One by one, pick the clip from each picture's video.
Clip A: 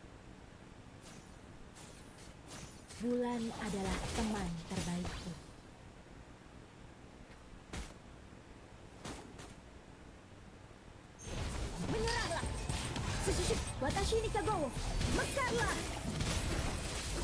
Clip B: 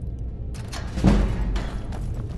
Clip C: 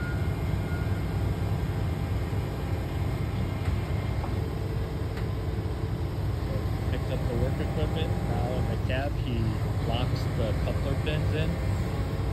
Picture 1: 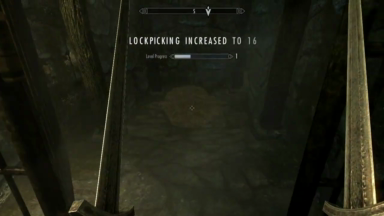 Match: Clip B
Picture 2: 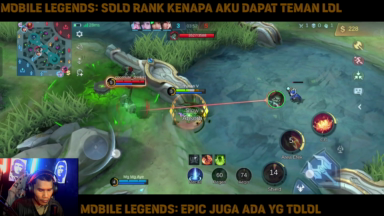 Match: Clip A